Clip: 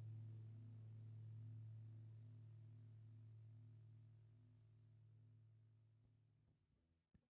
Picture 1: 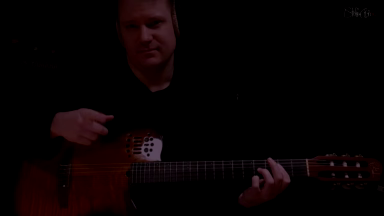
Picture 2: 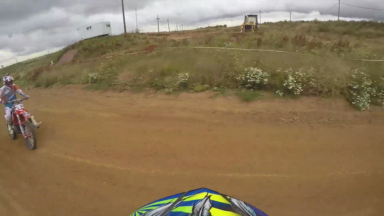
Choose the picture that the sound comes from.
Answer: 1